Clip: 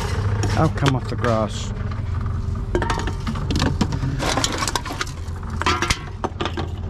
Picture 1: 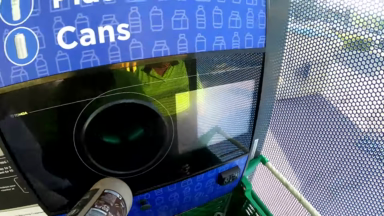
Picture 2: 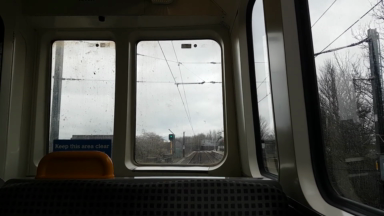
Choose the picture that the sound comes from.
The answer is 1